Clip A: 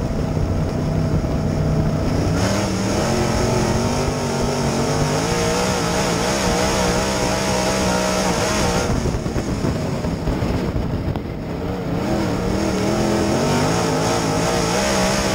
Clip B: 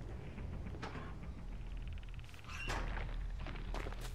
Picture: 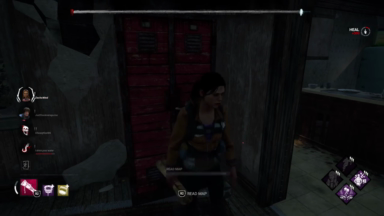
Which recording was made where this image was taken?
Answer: B